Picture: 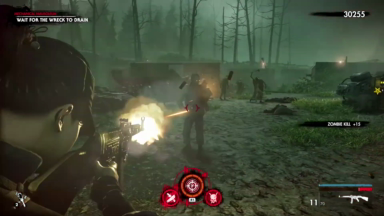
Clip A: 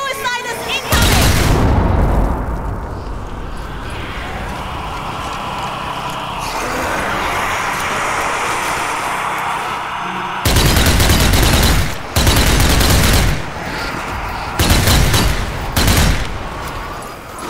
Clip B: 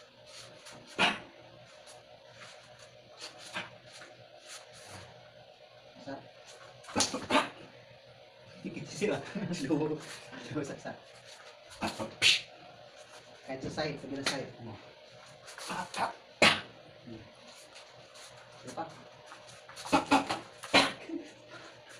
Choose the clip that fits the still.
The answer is A